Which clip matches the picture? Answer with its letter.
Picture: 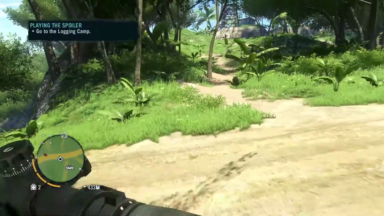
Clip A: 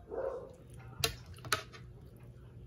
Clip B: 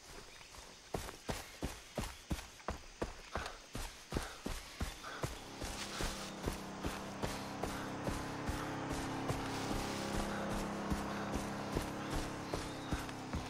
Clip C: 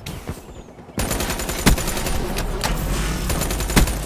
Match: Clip B